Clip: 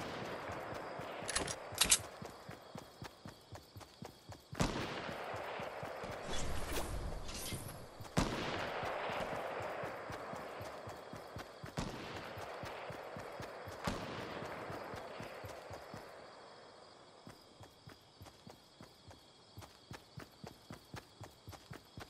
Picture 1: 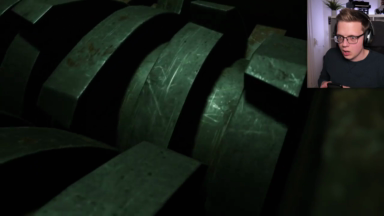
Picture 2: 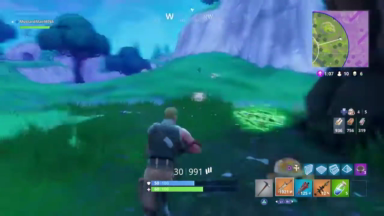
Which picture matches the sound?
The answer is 2